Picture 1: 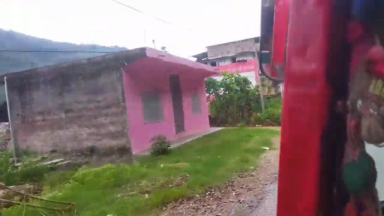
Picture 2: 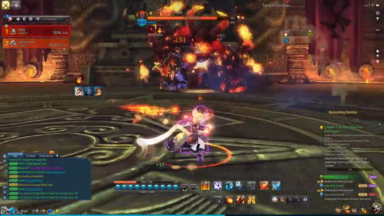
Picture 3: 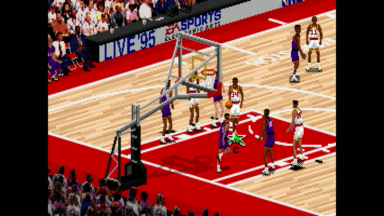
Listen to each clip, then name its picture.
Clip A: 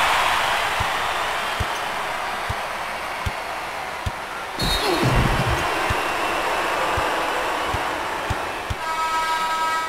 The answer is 3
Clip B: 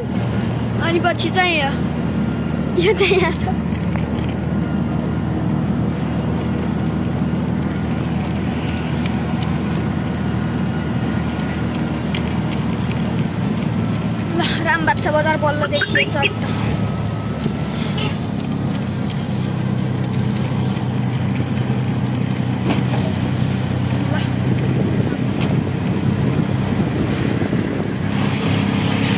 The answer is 1